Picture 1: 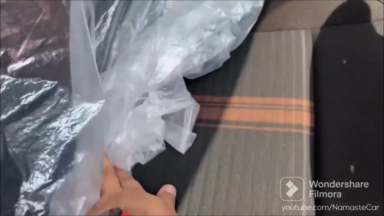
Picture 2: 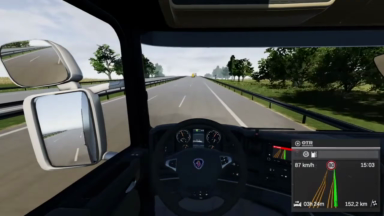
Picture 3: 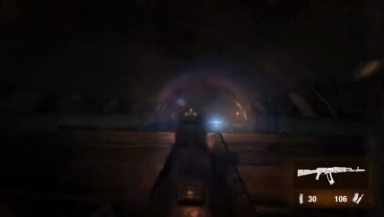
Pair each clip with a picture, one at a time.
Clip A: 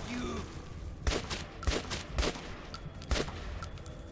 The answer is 3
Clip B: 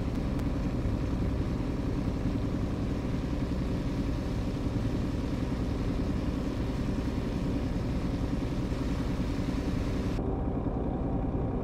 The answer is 2